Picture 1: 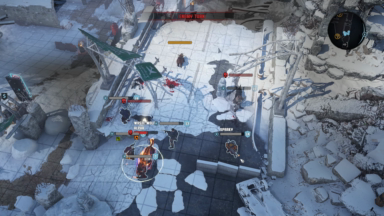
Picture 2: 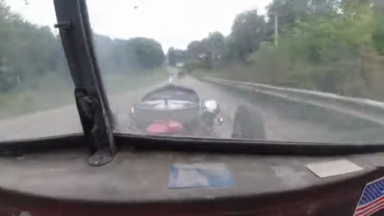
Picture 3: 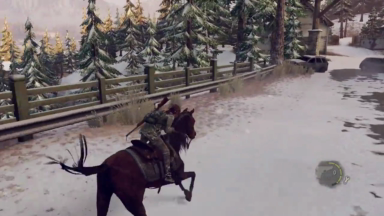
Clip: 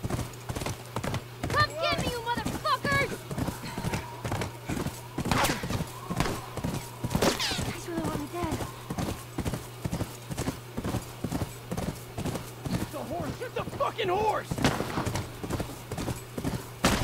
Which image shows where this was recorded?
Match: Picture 3